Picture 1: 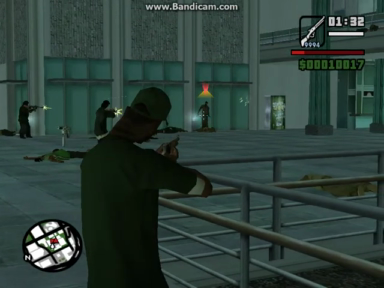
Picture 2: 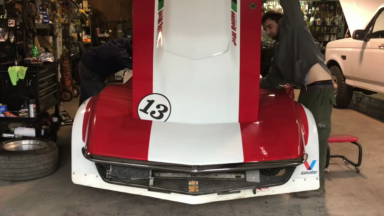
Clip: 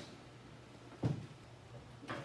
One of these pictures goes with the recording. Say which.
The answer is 2